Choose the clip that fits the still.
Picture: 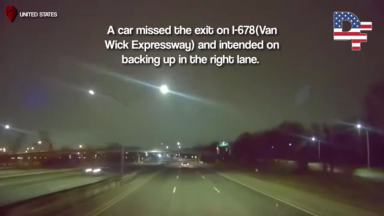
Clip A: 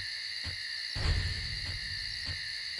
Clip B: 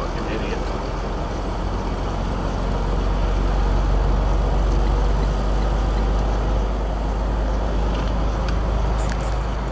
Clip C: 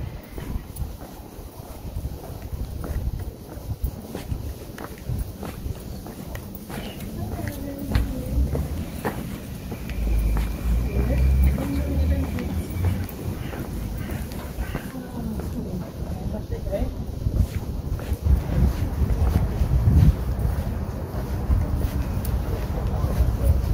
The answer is B